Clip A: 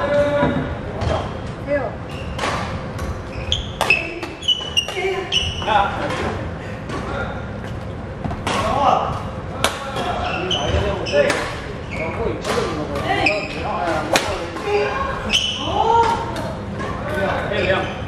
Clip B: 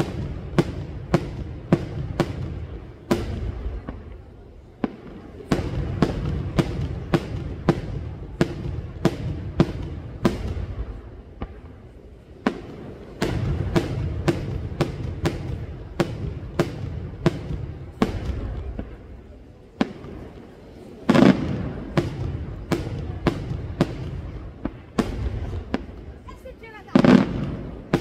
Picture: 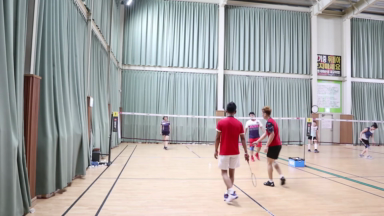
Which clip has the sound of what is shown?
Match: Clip A